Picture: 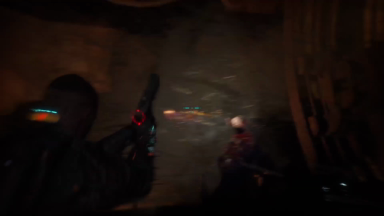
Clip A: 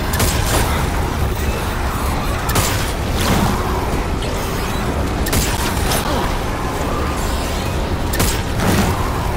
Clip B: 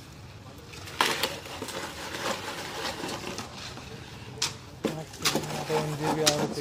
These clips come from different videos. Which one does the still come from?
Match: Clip A